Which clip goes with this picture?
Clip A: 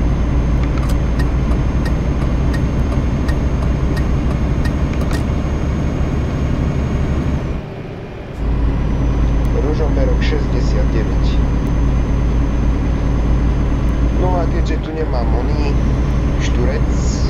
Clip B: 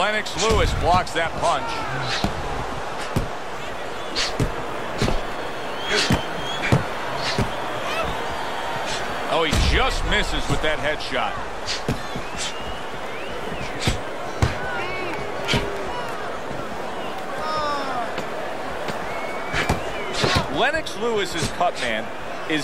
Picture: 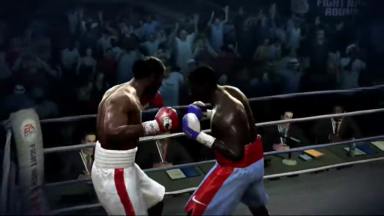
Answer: B